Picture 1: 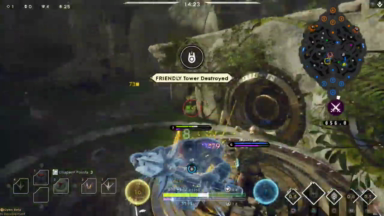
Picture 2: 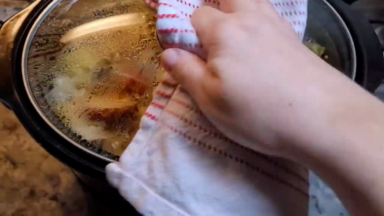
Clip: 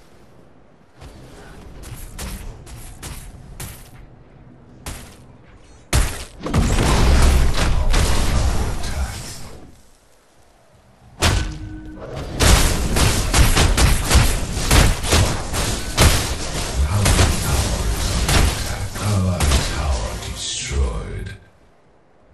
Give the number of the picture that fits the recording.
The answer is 1